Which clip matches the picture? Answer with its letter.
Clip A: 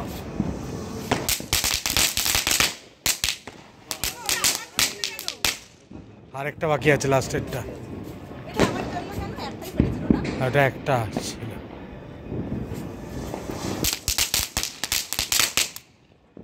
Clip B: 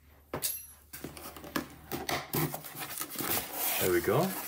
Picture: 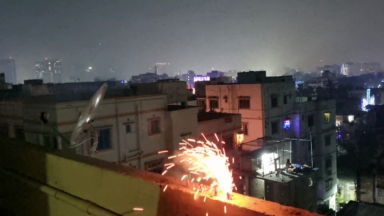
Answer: A